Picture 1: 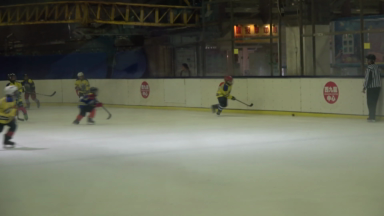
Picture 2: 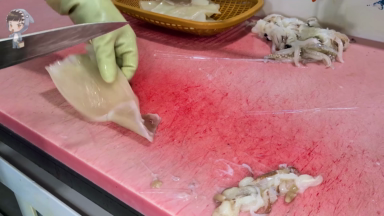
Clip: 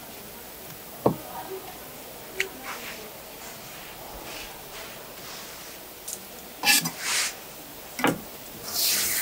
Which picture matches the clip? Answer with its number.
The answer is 2